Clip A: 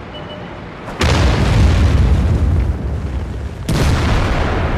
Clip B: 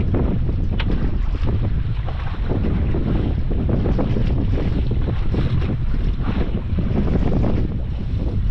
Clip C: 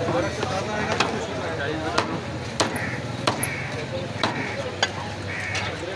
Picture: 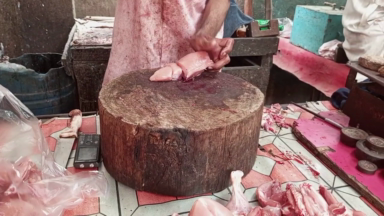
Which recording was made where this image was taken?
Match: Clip C